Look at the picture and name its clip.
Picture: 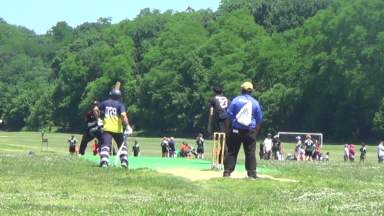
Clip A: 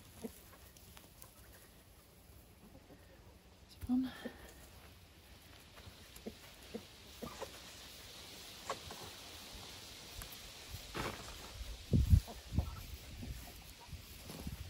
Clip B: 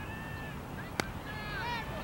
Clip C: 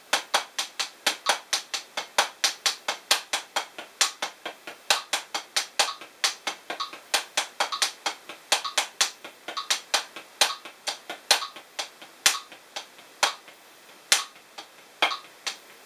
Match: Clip B